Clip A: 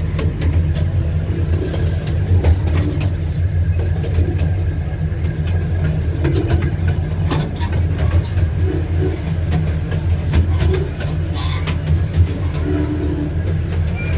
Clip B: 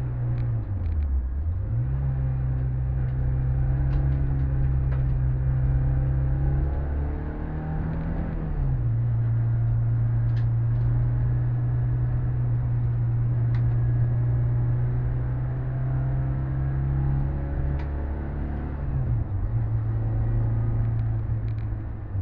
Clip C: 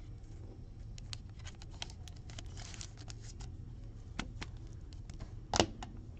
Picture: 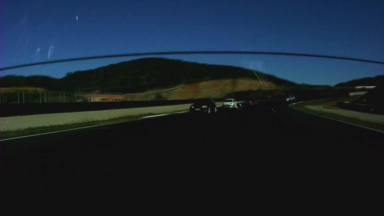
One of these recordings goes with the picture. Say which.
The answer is B